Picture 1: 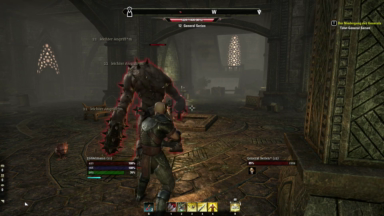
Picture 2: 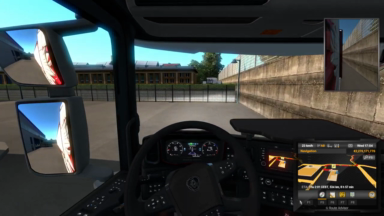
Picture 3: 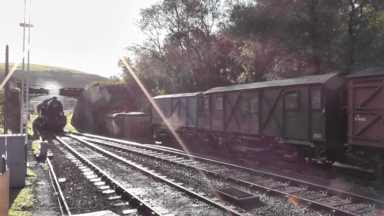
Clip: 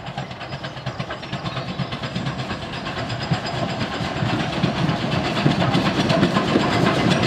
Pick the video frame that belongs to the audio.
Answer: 3